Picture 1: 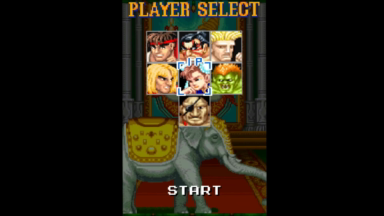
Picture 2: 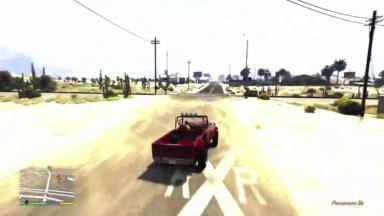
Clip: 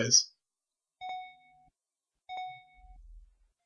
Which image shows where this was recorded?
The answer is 1